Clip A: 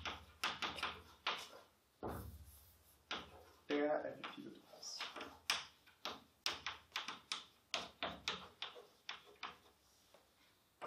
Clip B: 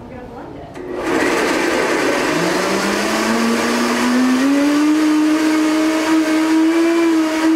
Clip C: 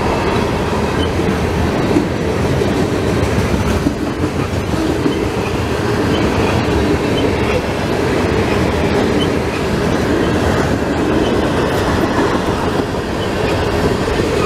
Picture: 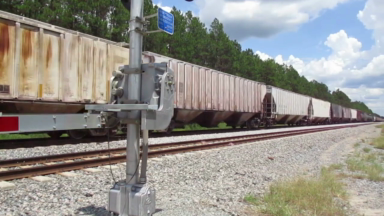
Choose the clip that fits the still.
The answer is C